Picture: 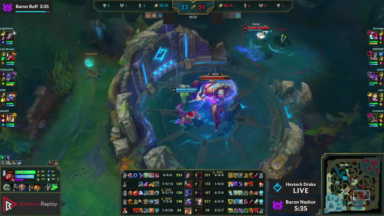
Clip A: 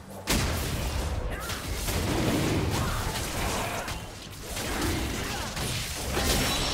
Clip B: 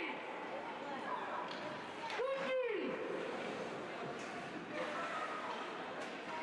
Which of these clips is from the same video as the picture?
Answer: A